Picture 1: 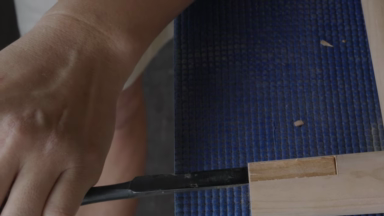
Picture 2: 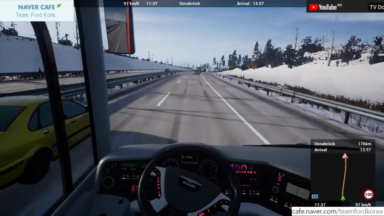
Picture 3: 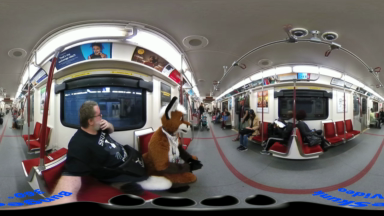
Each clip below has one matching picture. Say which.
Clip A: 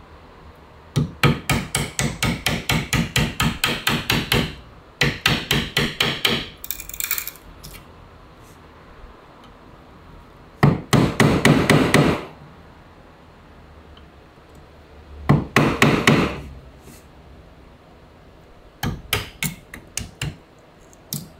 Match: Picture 1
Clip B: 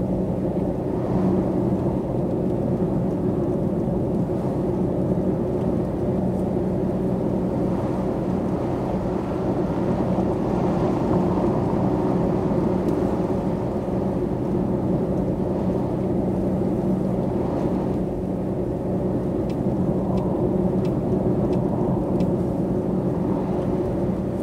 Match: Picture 2